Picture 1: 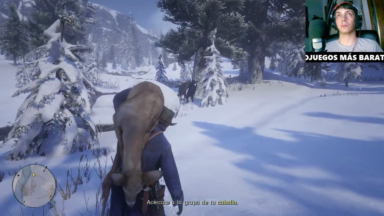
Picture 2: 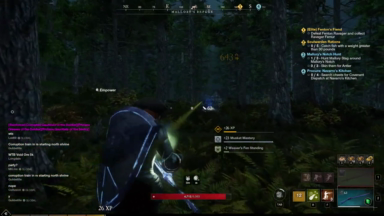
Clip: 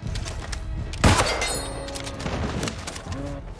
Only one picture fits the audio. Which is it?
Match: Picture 2